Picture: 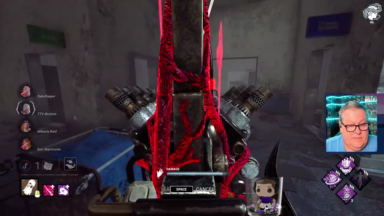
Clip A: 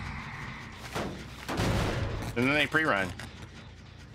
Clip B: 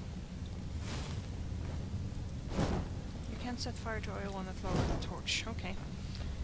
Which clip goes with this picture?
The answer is A